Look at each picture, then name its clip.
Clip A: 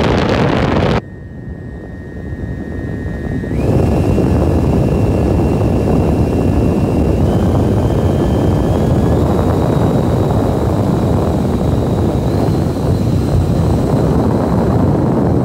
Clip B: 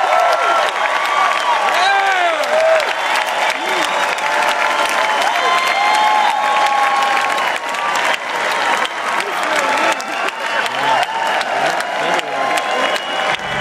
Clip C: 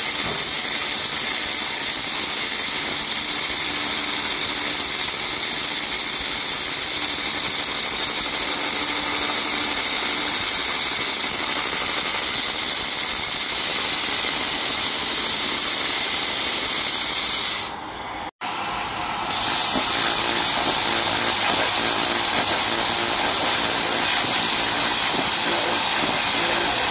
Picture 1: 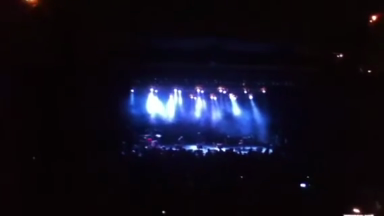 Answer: B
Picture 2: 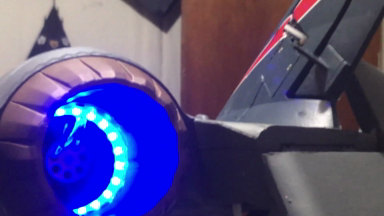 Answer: A